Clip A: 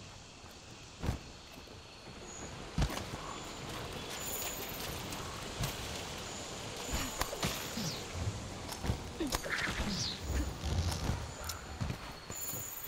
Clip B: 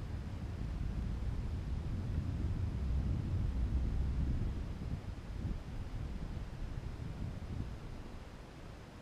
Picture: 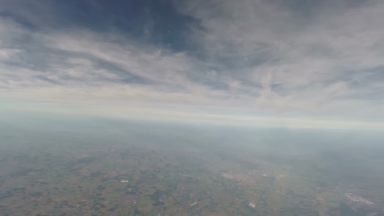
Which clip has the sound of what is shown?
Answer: B